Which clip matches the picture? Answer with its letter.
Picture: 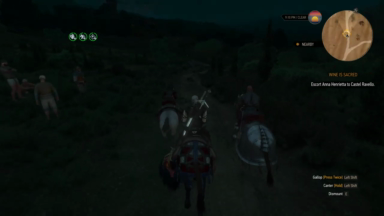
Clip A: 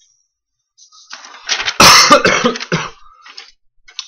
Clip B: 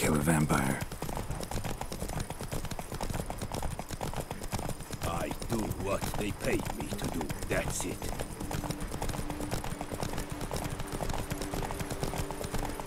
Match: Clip B